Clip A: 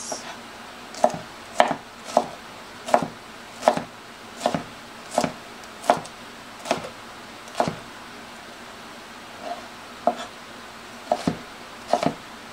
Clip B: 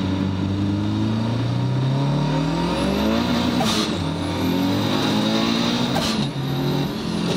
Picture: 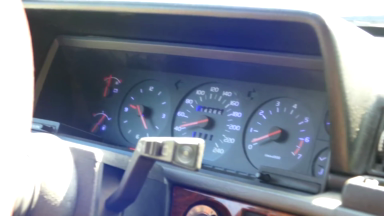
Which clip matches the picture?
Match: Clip B